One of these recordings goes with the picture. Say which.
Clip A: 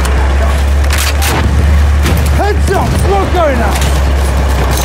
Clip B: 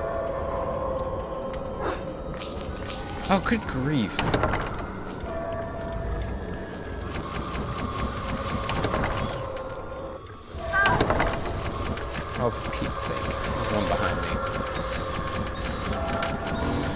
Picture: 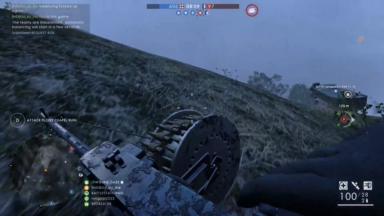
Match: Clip A